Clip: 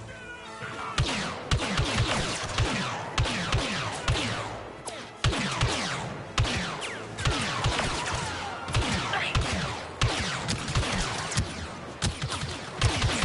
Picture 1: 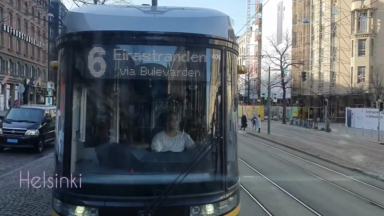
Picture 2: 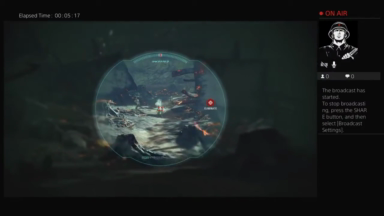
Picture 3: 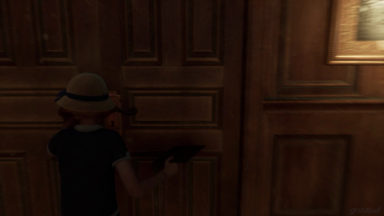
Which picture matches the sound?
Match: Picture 2